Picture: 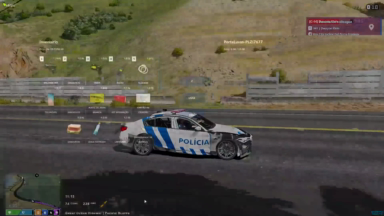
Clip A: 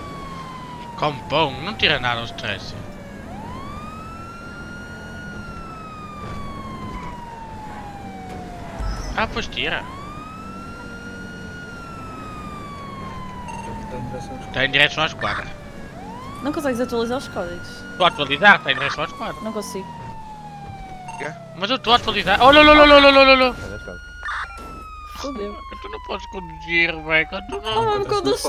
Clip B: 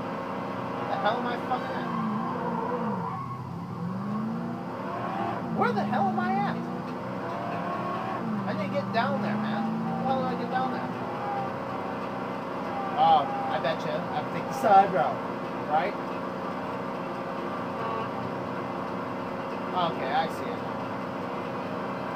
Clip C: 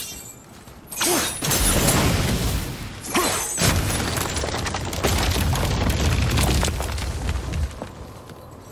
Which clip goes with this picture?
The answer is A